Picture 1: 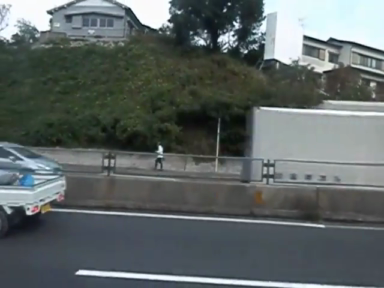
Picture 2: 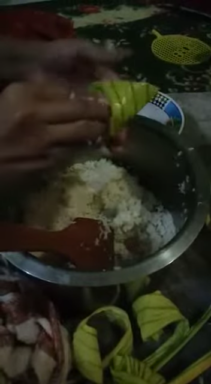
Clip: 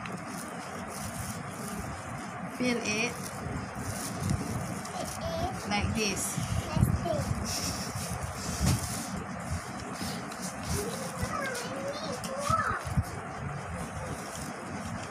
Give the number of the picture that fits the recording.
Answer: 2